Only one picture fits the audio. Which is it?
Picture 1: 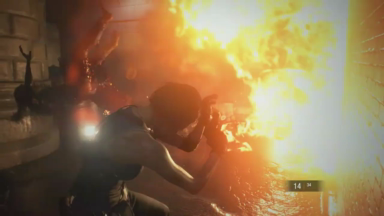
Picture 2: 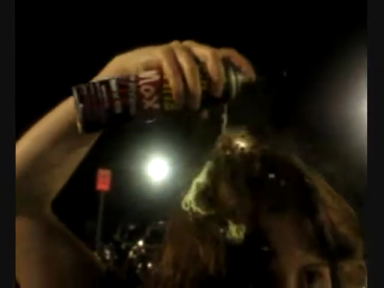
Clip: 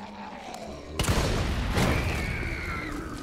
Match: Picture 1